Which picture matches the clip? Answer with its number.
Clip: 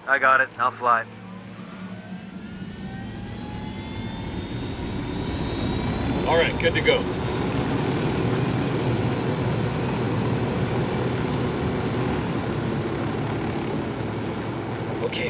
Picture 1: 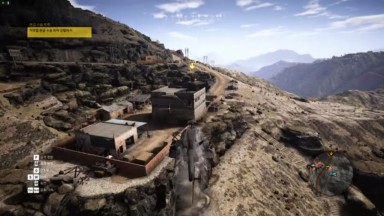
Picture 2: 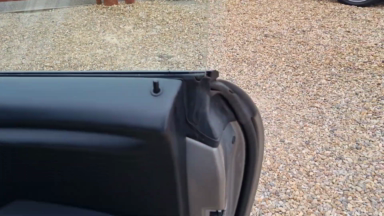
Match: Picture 1